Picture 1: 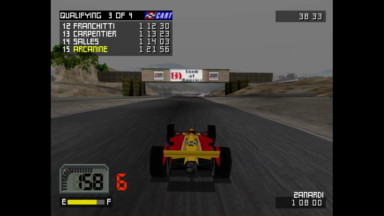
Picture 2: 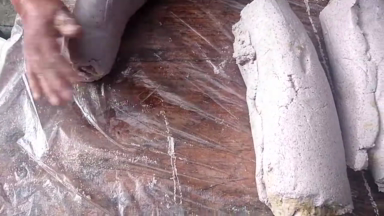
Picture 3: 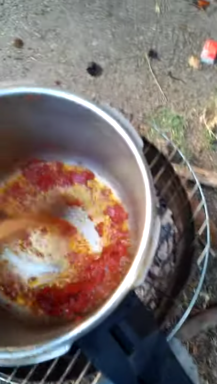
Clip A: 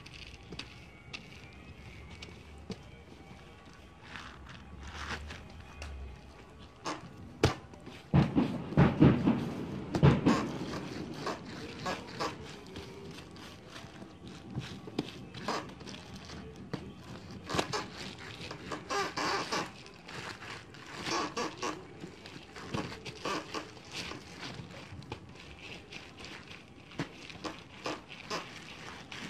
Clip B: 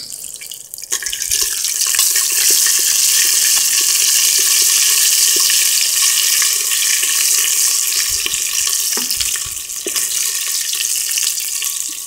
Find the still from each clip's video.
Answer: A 2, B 3